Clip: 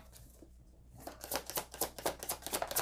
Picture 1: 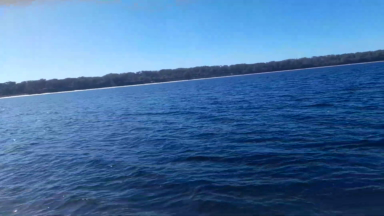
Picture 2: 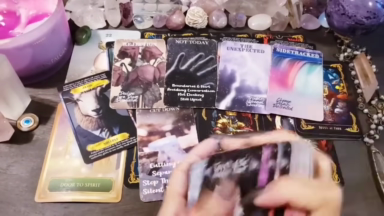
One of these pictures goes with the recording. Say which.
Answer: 2